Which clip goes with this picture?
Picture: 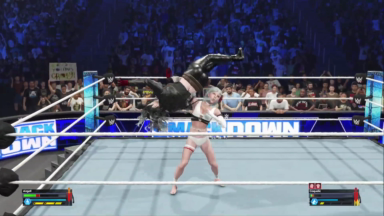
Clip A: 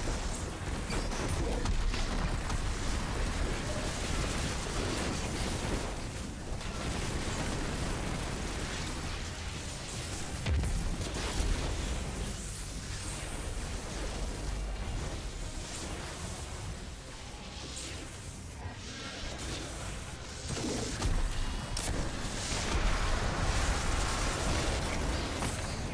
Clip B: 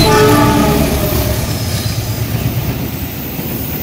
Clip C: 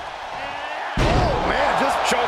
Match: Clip C